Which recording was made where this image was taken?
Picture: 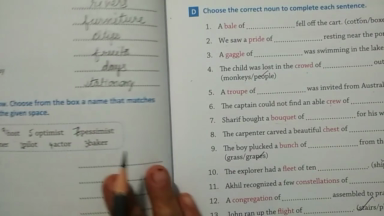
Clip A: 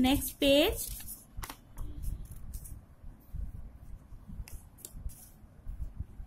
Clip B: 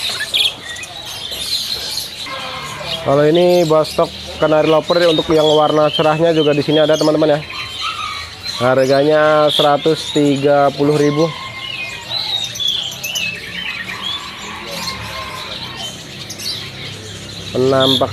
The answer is A